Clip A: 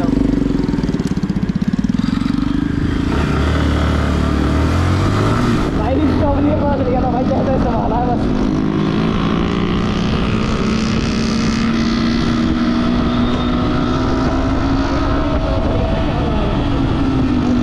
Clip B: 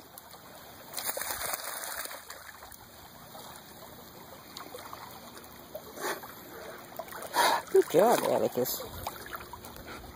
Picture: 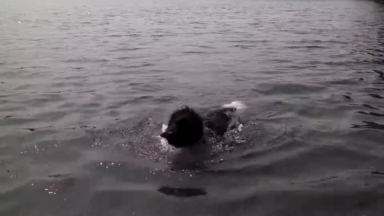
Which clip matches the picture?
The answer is B